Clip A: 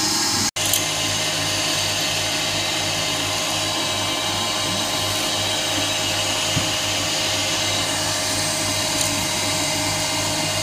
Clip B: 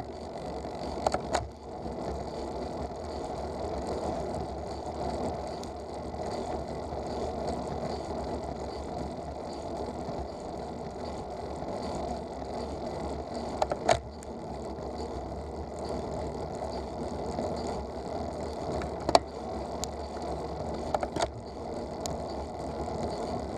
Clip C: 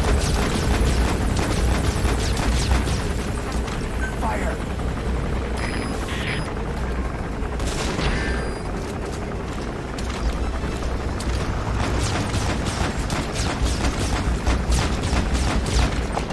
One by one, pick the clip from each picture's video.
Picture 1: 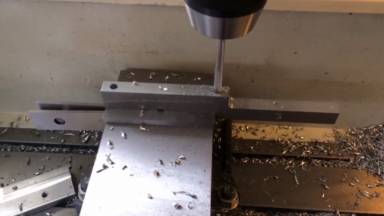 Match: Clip A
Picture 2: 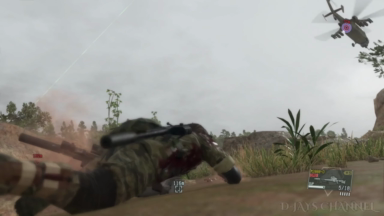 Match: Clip C